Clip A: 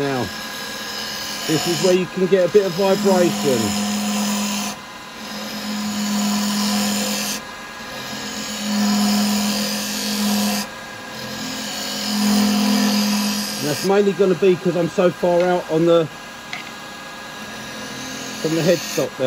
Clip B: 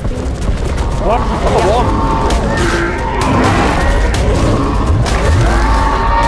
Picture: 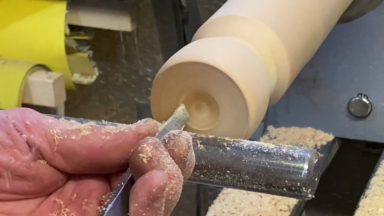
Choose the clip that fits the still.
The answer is A